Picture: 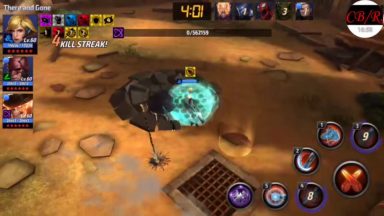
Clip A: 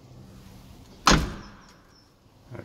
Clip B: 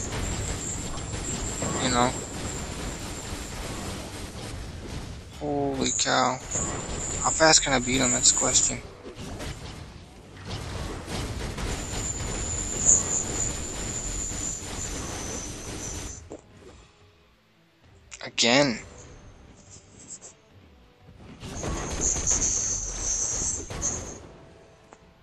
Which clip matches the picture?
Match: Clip B